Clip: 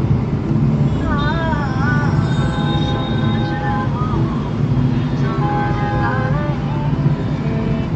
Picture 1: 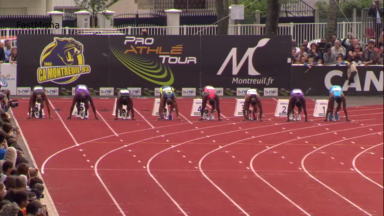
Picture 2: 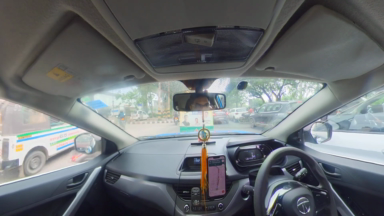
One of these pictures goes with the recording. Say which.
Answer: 2